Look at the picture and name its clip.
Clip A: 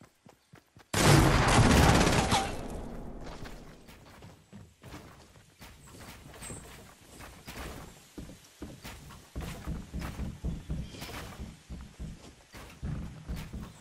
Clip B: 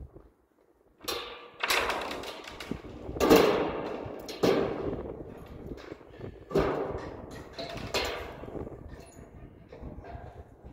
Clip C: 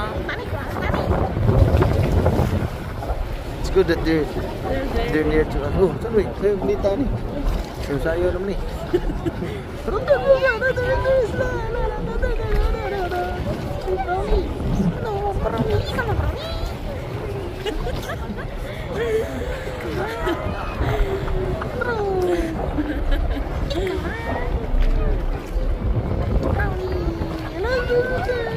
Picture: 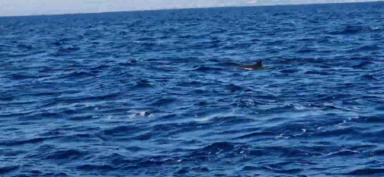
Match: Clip C